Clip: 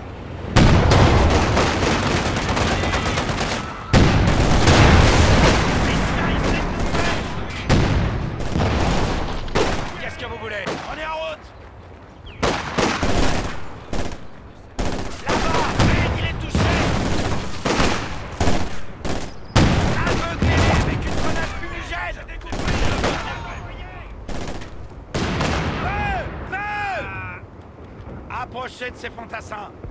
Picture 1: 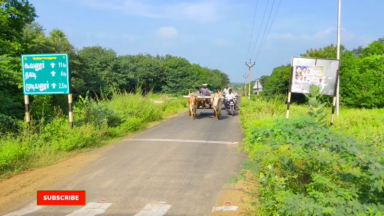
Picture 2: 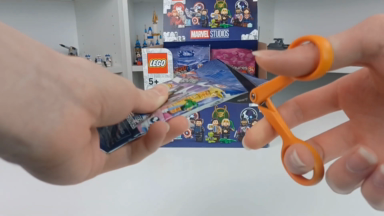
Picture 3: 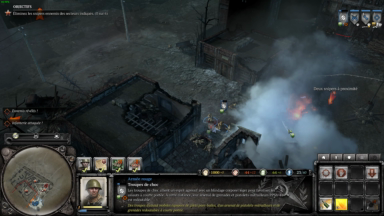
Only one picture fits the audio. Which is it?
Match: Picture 3